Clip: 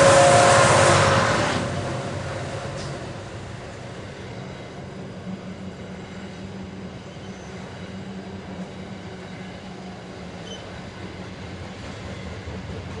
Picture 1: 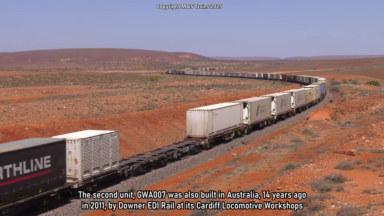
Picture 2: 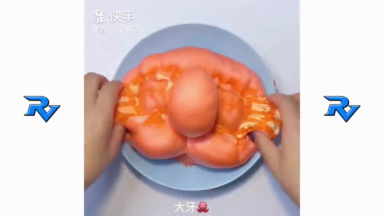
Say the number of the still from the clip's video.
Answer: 1